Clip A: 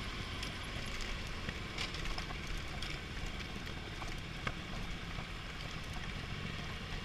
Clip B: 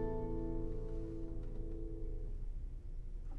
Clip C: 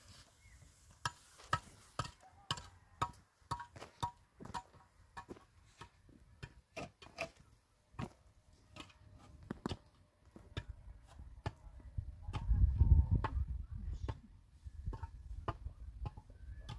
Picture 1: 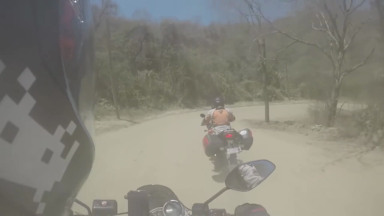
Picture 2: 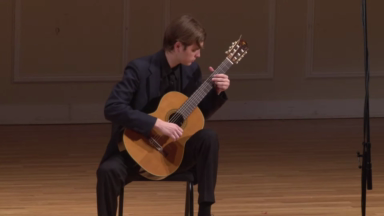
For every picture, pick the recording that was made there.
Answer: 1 A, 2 B